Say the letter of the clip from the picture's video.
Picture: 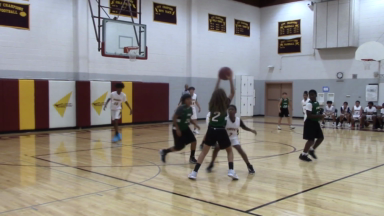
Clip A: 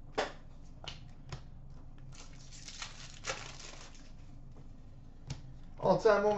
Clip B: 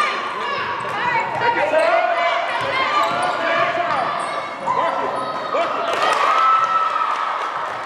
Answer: B